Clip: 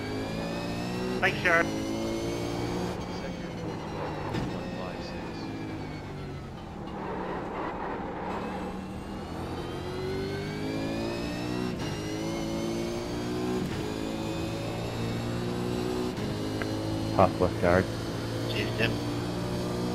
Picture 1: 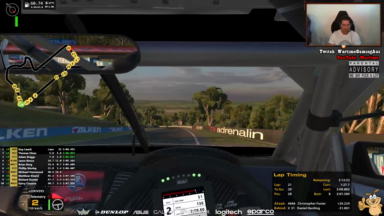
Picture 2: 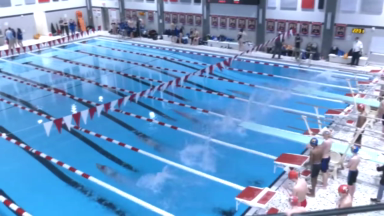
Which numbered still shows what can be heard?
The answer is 1